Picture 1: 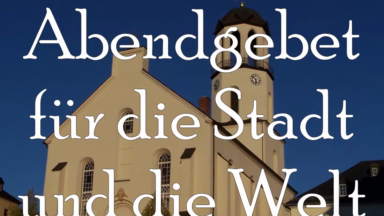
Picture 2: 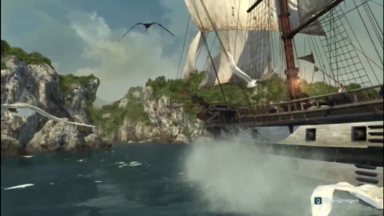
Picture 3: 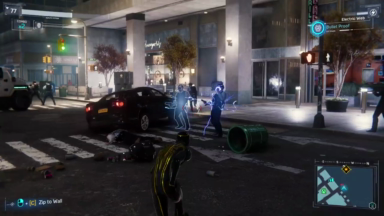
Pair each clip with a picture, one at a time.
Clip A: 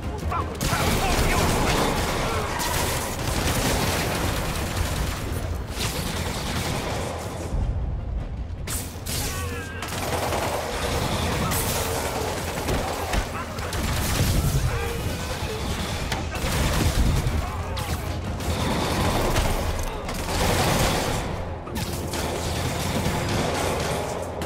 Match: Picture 3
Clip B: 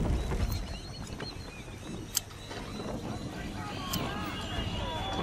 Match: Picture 2